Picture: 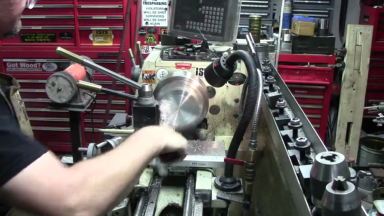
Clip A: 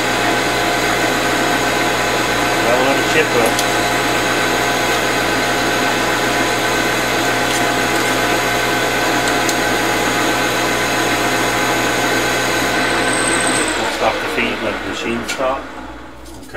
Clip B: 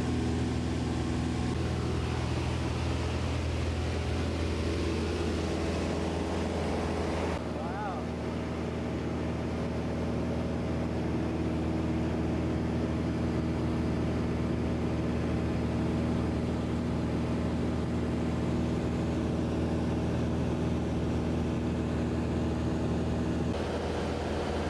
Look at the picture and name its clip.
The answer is A